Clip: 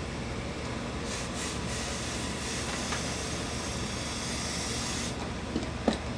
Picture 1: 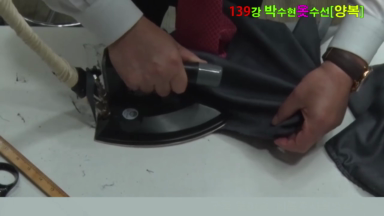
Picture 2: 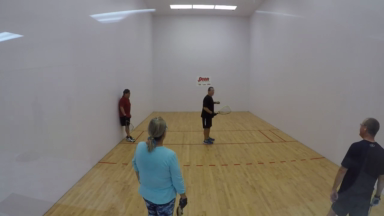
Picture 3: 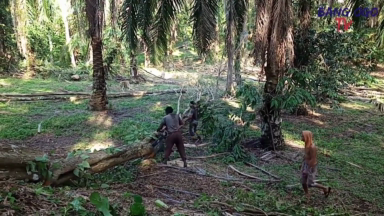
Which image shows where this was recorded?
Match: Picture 1